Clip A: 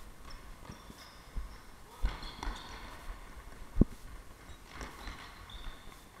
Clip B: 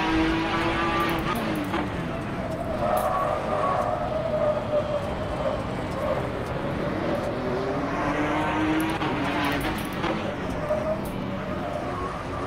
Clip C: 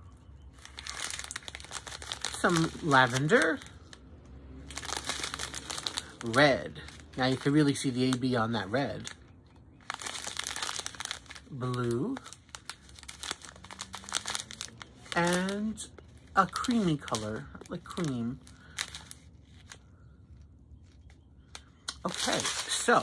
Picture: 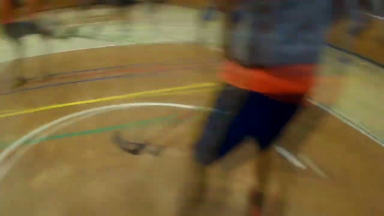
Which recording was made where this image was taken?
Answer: A